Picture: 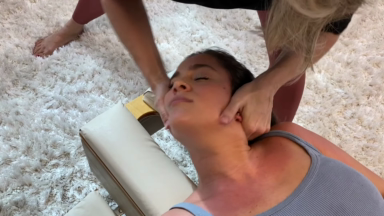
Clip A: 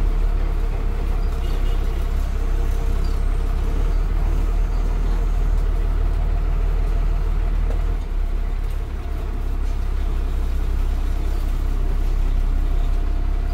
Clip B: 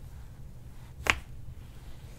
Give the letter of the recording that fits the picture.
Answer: B